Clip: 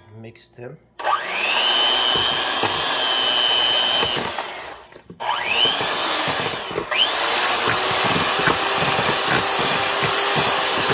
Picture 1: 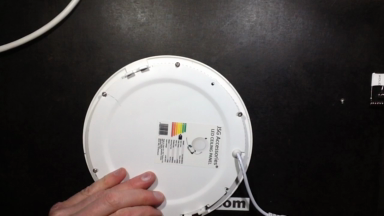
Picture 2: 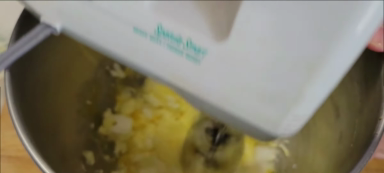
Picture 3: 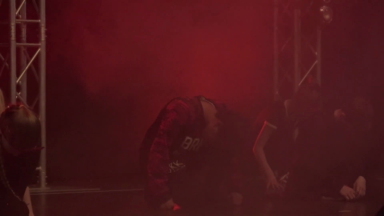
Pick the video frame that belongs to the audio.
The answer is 2